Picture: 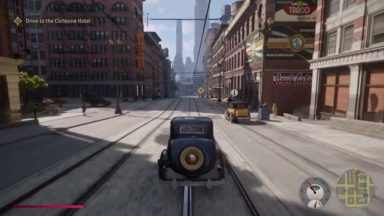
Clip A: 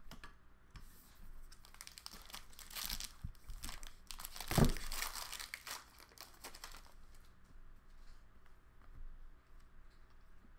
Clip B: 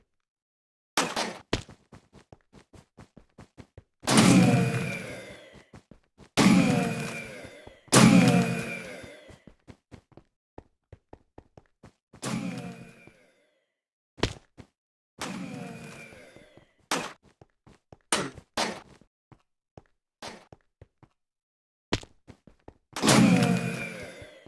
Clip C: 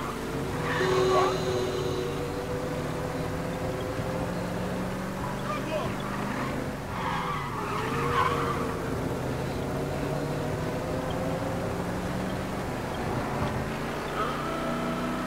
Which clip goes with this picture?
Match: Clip C